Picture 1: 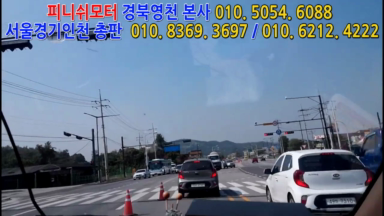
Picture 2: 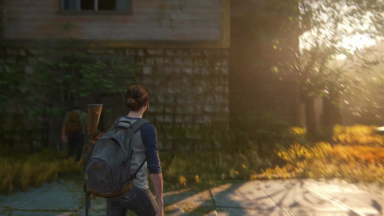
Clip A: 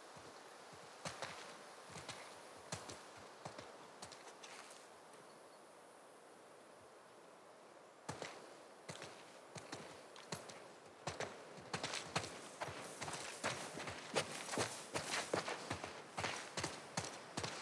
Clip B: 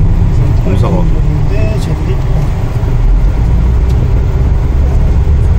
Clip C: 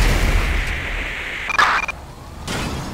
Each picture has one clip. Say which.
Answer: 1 B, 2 A